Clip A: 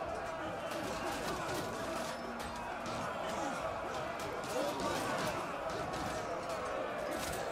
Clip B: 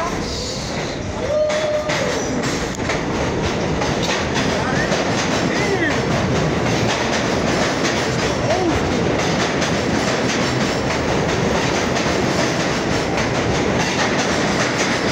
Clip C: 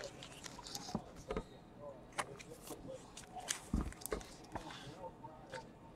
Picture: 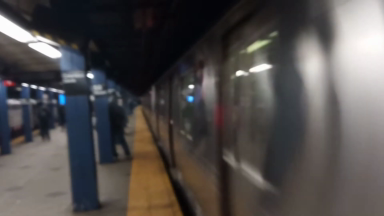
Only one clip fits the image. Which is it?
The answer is B